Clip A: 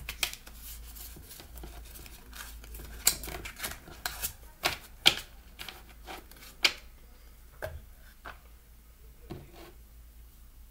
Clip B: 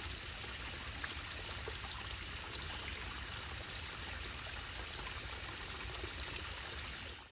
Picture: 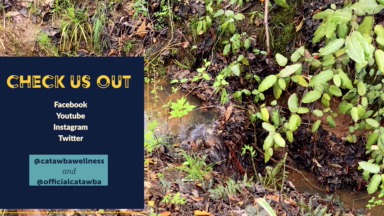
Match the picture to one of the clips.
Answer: B